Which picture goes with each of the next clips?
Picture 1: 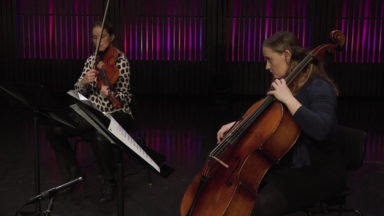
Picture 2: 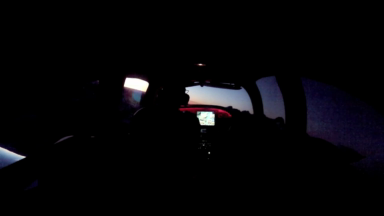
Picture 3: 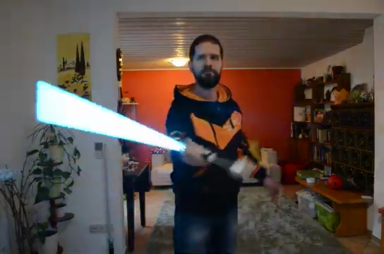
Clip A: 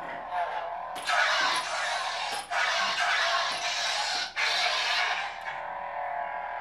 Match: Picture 3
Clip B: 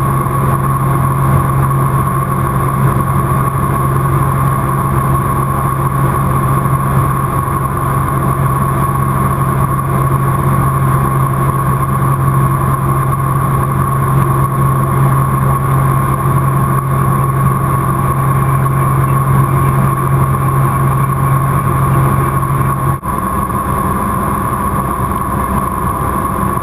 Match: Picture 2